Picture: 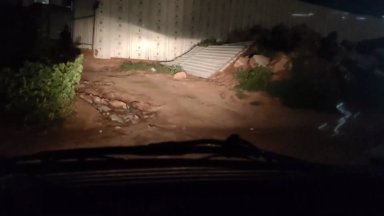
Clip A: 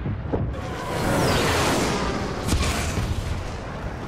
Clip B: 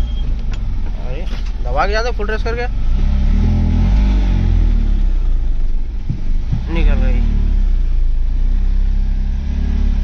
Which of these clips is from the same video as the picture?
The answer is B